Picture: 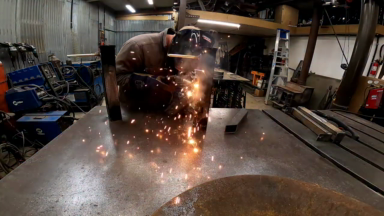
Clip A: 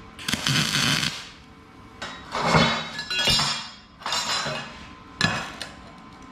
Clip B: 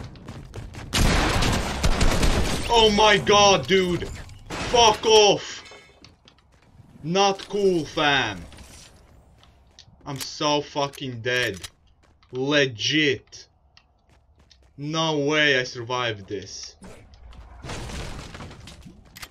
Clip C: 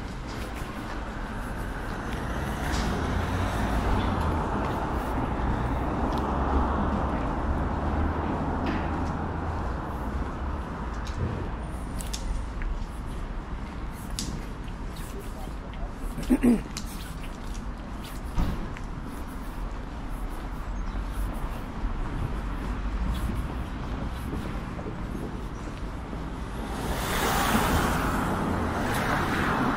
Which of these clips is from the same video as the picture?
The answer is A